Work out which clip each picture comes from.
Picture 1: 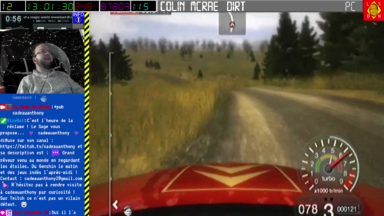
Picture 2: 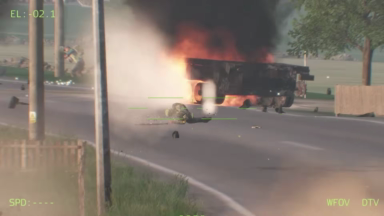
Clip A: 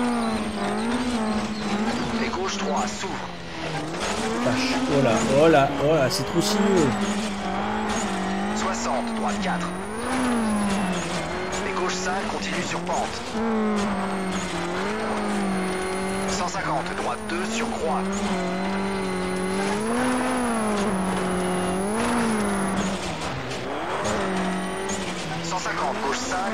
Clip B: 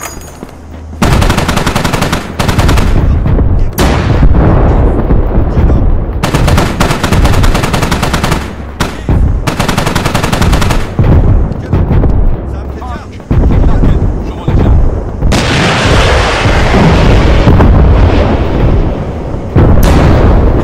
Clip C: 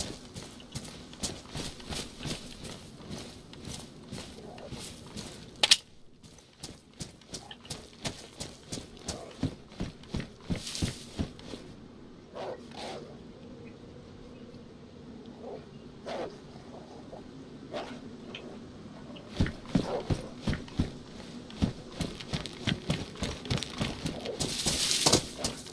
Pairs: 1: A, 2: B